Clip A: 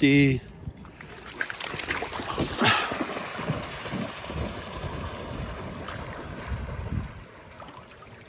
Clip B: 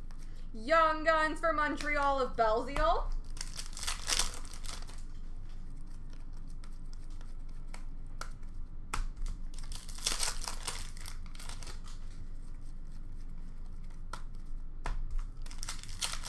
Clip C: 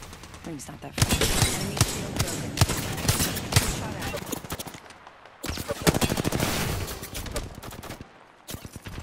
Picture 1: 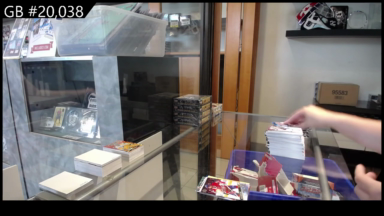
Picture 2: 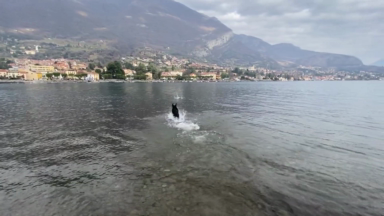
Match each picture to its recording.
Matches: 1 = B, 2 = A